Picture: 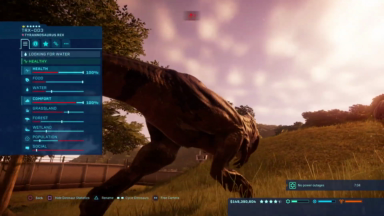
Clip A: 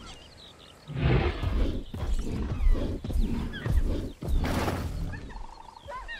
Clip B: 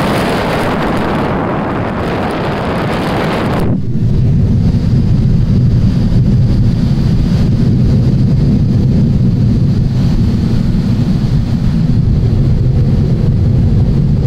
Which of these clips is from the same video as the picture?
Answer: A